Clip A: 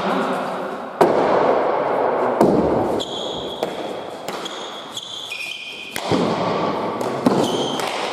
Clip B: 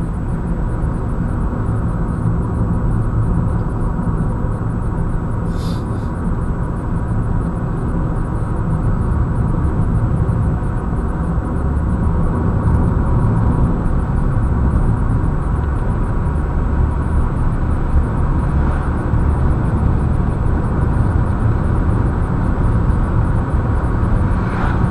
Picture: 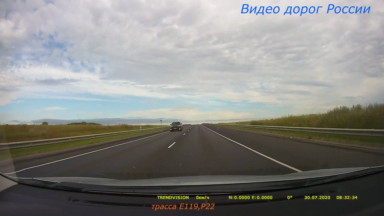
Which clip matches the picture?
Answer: B